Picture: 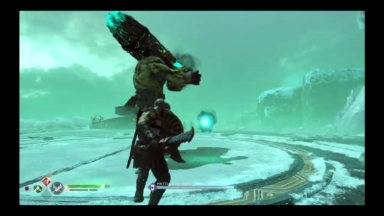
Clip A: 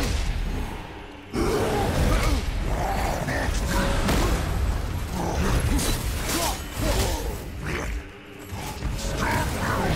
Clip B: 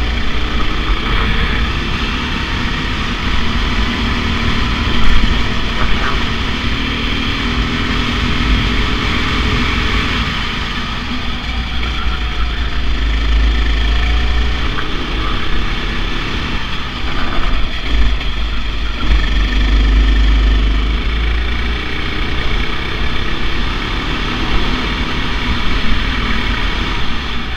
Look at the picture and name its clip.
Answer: A